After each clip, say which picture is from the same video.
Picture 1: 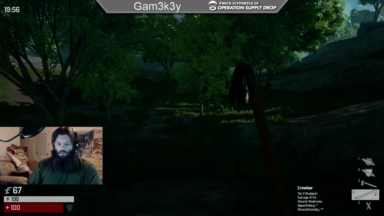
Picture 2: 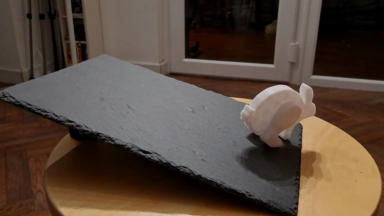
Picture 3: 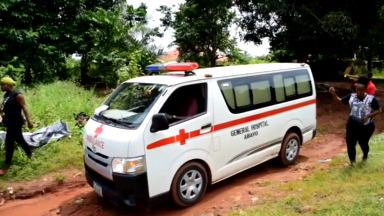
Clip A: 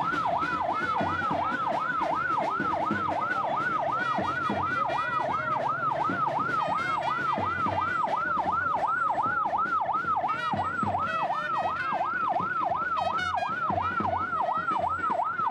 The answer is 3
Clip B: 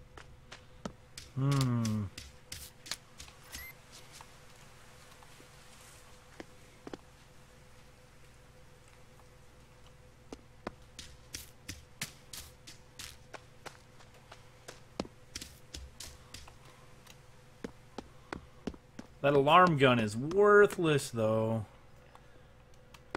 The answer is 1